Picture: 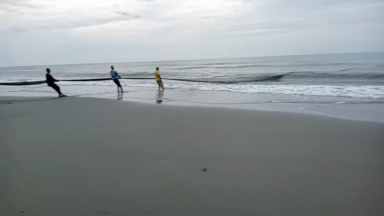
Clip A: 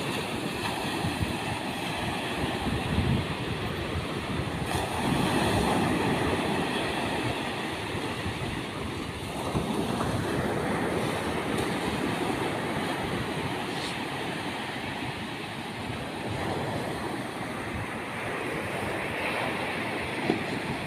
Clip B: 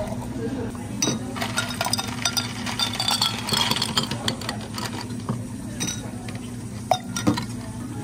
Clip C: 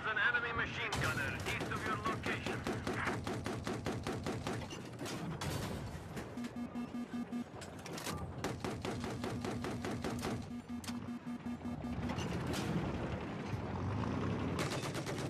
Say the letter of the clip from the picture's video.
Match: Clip A